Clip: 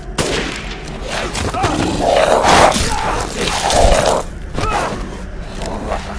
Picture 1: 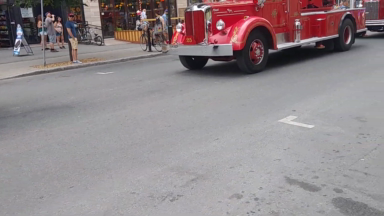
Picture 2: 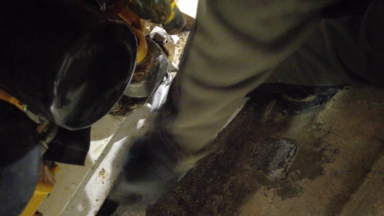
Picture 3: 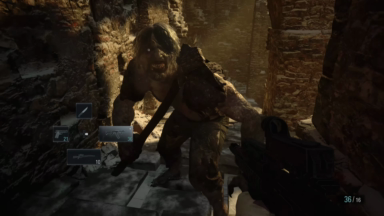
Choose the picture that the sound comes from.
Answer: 3